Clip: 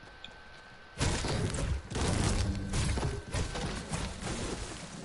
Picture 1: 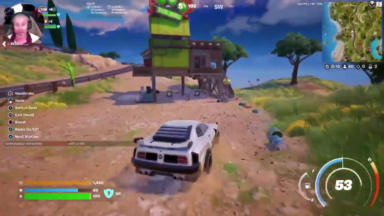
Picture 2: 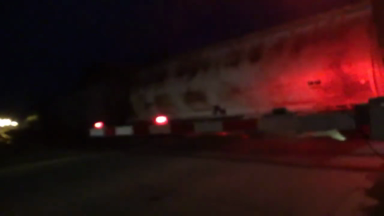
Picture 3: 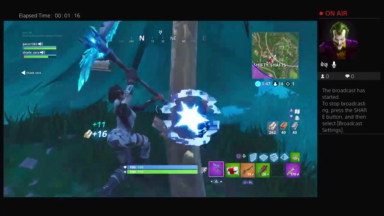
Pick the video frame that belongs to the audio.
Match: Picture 3